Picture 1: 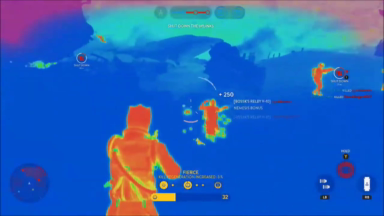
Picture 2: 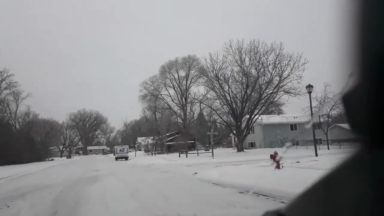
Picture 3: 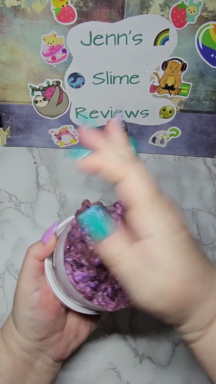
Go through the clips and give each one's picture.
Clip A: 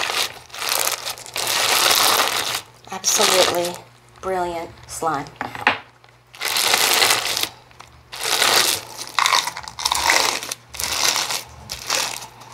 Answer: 3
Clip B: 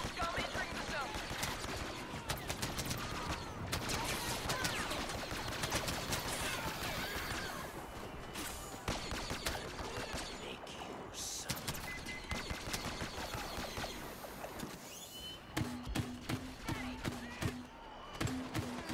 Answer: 1